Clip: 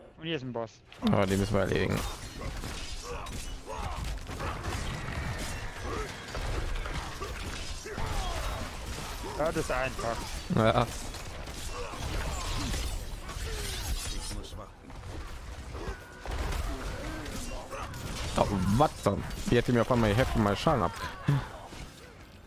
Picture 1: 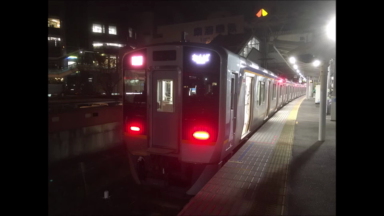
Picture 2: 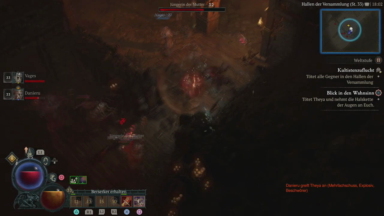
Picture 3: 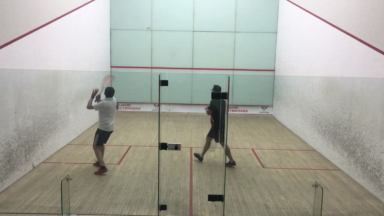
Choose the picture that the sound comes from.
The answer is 2